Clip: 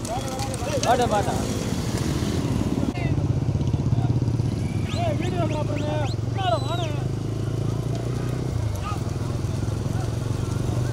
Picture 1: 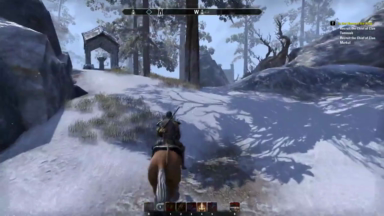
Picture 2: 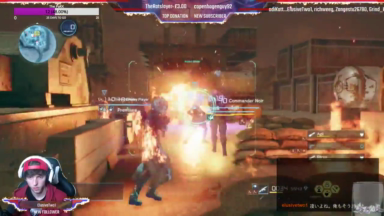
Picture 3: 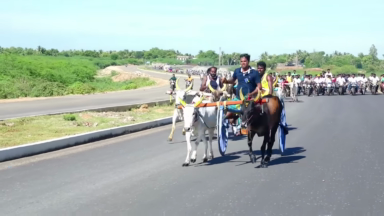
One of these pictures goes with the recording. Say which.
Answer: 3